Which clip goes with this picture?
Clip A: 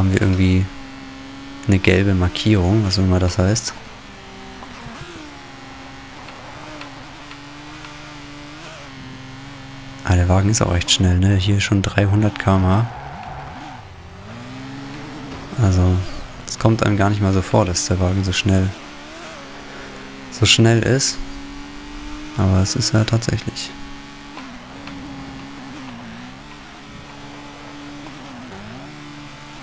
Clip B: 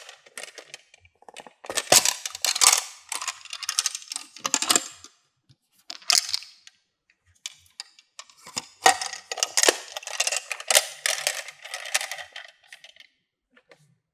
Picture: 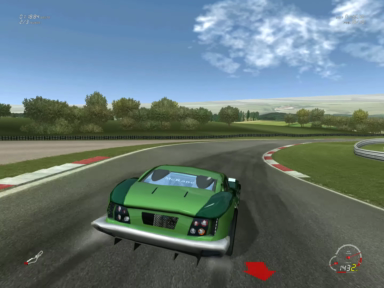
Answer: A